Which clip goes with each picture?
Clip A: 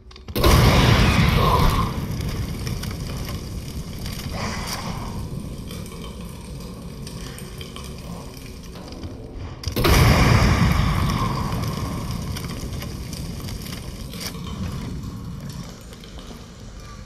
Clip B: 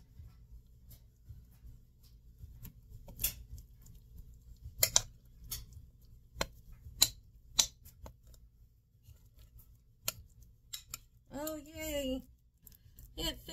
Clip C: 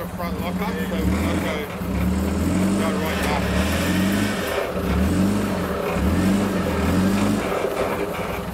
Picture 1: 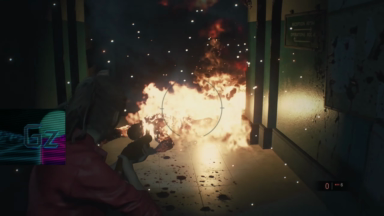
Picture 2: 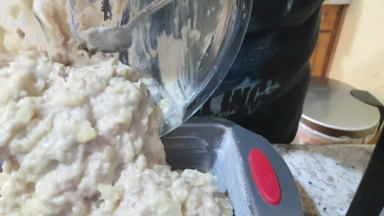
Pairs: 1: A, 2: B